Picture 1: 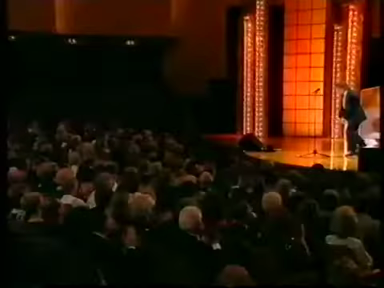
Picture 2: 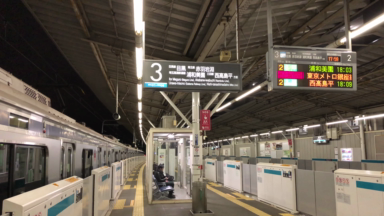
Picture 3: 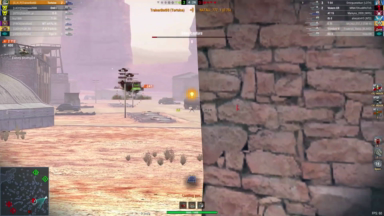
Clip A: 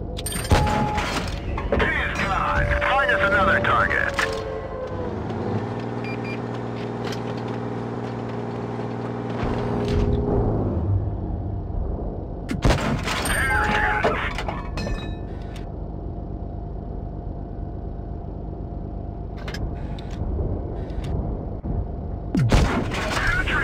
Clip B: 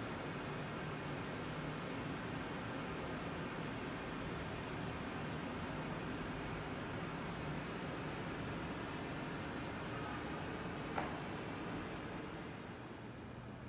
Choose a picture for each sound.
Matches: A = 3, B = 2